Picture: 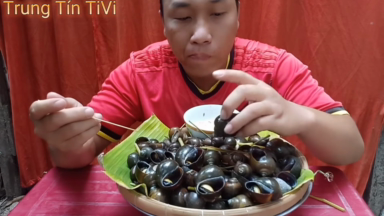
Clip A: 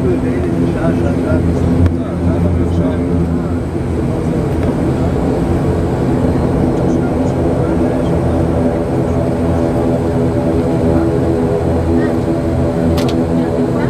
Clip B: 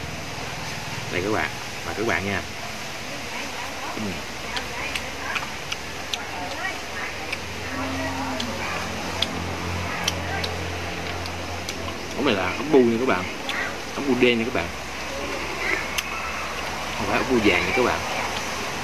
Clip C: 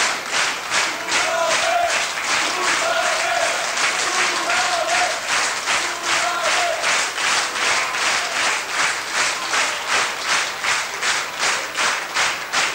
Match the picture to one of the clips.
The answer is B